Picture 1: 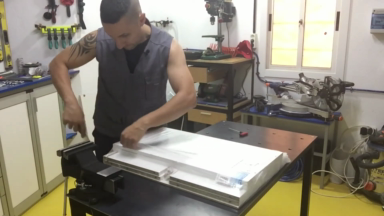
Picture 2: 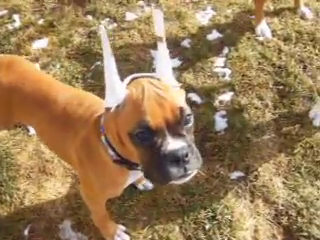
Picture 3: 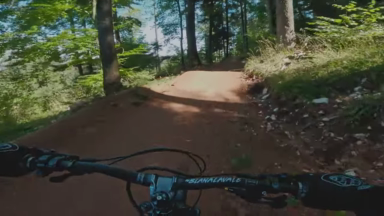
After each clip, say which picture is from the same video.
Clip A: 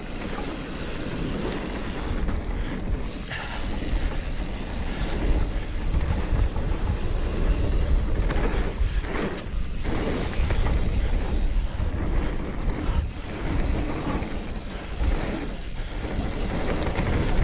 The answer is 3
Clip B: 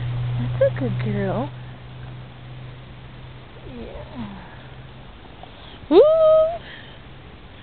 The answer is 2